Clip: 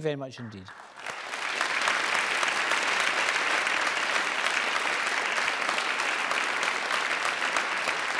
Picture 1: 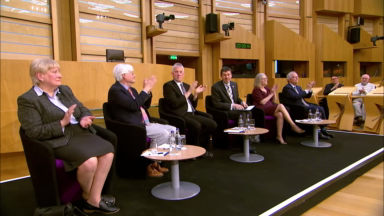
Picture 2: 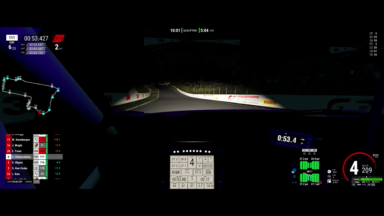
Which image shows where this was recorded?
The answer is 1